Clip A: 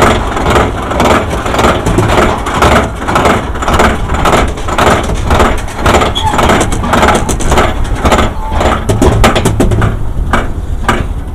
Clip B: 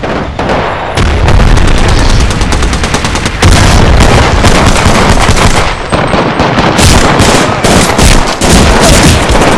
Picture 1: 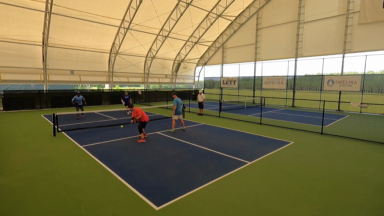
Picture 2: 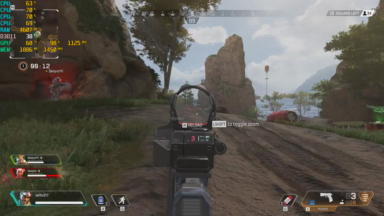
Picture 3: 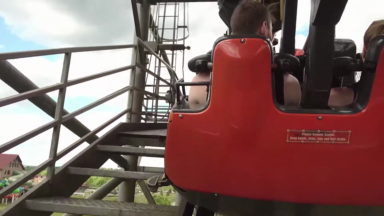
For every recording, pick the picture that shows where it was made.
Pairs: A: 3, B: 2